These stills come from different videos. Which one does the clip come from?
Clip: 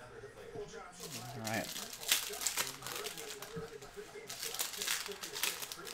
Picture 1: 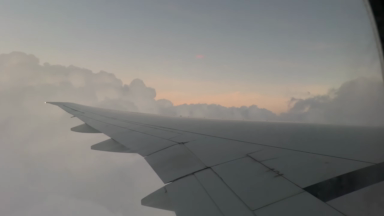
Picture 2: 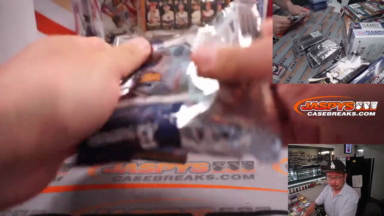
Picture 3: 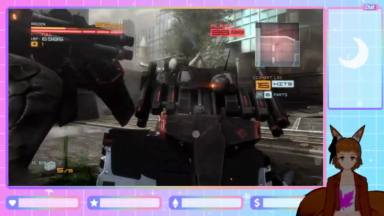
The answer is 2